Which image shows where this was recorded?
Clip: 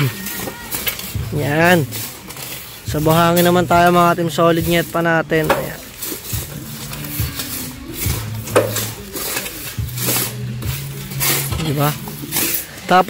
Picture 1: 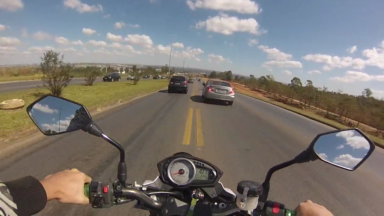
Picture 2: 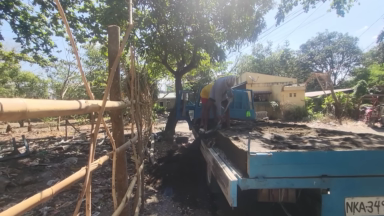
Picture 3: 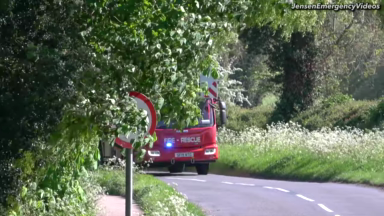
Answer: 2